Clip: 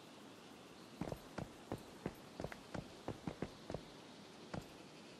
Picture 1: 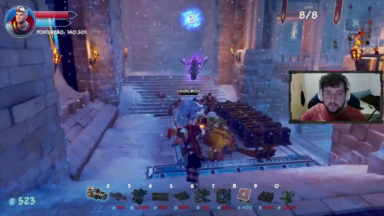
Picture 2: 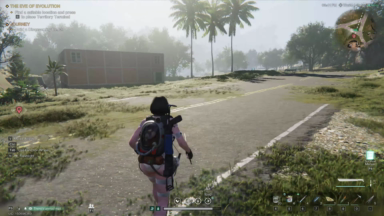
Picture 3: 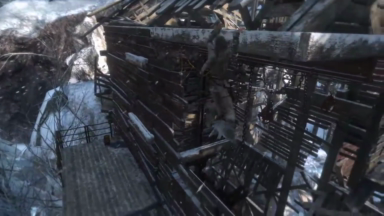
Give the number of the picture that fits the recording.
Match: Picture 2